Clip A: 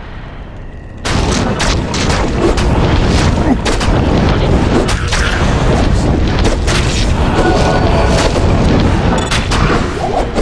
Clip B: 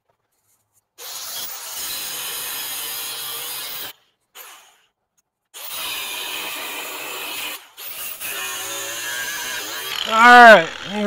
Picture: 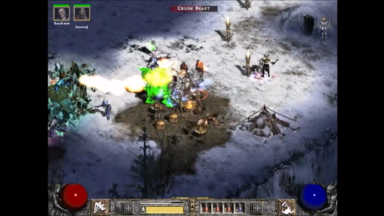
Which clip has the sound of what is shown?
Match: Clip A